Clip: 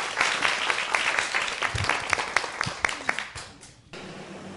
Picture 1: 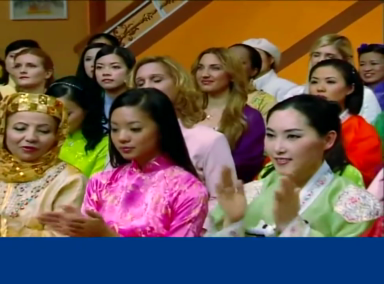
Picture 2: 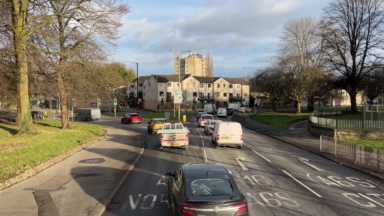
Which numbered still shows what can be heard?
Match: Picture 1